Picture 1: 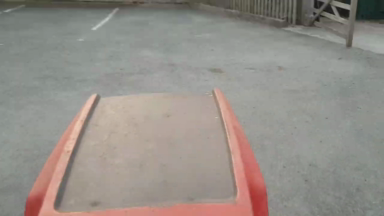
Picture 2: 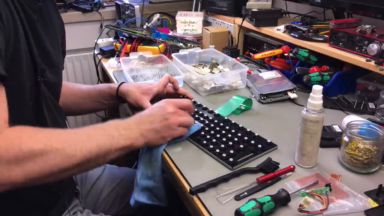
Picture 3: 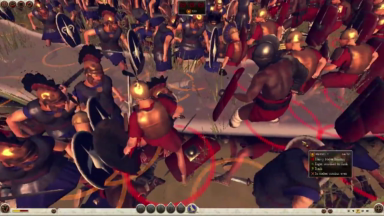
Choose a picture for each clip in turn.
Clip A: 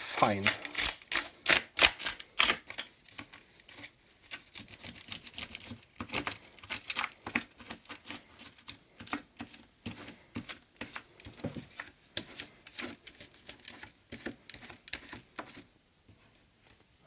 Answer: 2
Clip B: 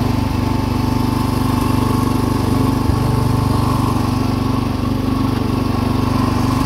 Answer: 1